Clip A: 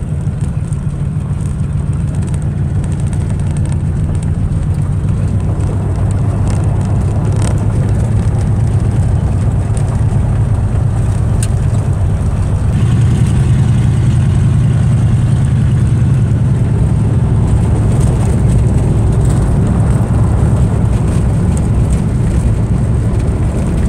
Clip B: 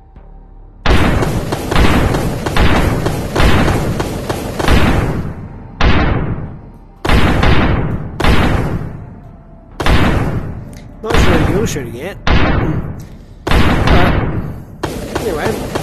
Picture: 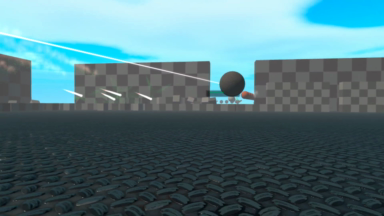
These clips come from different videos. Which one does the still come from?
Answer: B